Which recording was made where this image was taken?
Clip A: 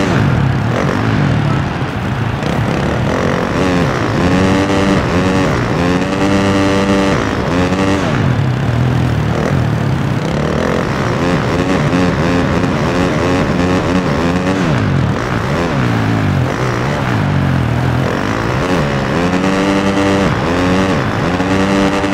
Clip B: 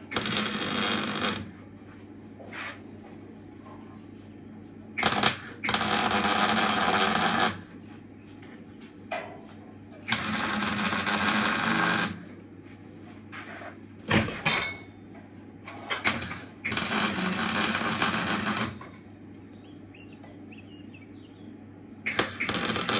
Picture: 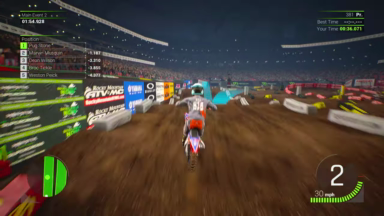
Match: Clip A